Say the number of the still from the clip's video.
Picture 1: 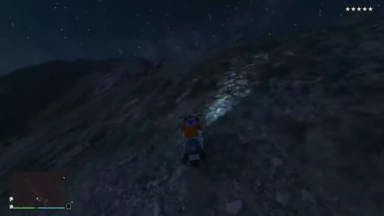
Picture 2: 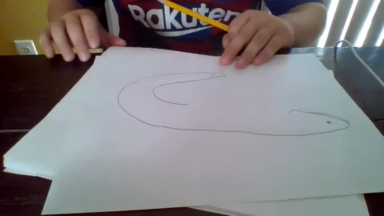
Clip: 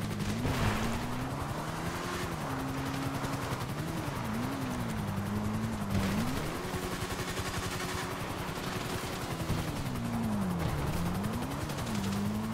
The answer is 1